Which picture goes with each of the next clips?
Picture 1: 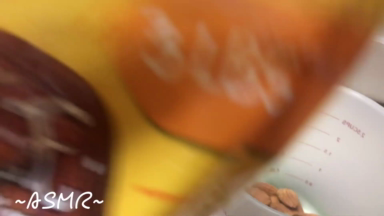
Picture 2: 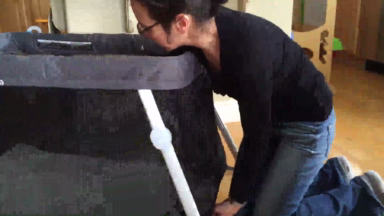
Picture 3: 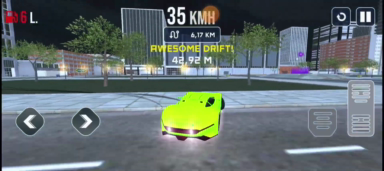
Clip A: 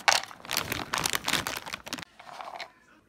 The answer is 1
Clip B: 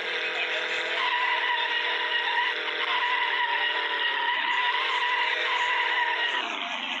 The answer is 3